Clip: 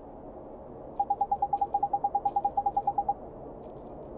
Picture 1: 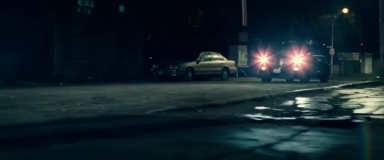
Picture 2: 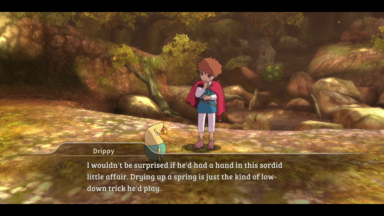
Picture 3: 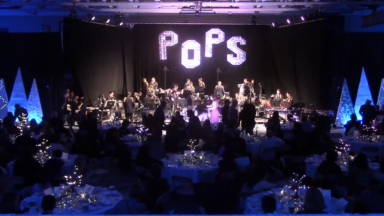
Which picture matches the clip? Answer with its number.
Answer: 2